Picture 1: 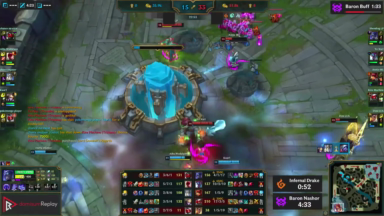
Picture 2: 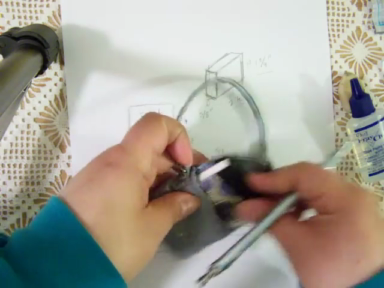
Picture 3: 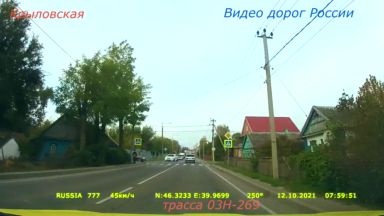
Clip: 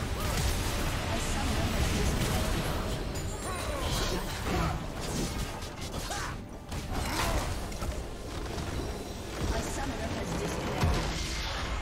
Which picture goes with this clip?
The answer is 1